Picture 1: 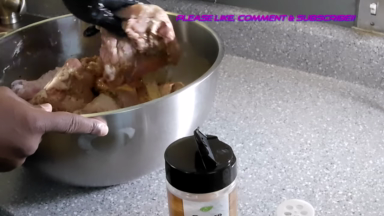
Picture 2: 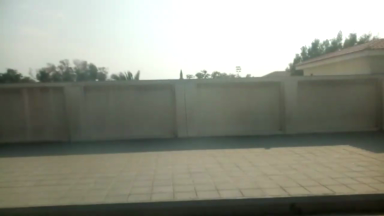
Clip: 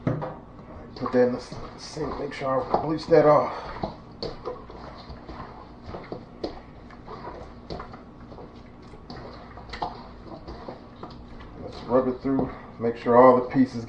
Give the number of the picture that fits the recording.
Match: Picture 1